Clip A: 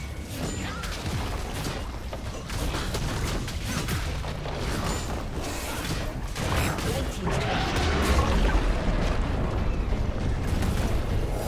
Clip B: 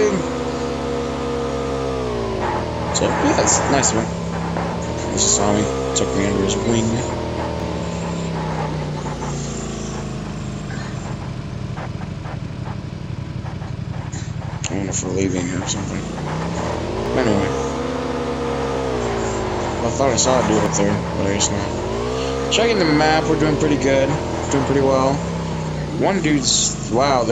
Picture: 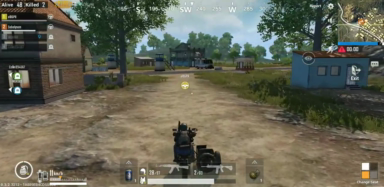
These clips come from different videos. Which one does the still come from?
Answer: B